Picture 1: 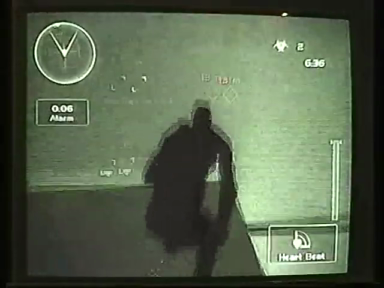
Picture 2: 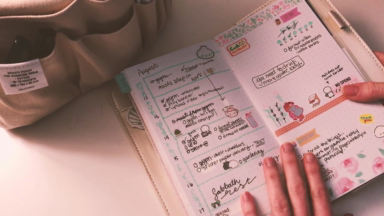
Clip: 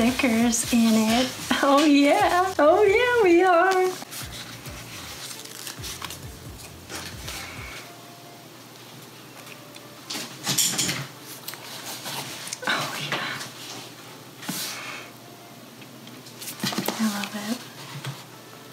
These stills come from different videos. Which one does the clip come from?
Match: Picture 2